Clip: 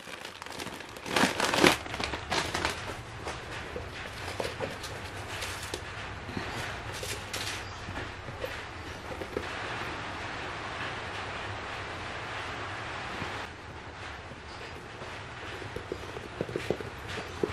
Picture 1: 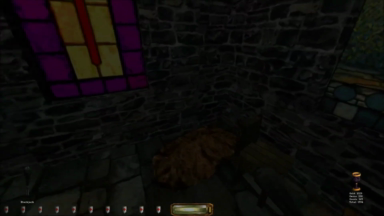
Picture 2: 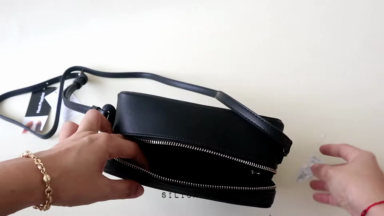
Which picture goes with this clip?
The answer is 2